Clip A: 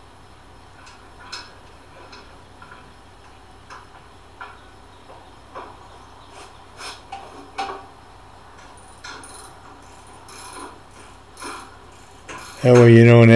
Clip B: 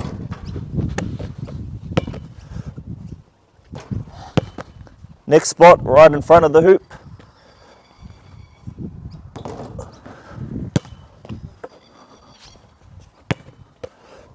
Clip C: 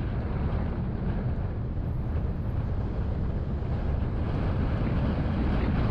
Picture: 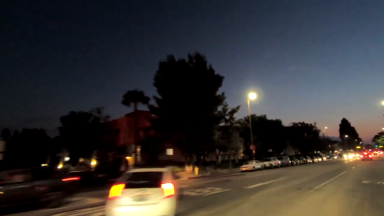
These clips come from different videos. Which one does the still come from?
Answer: C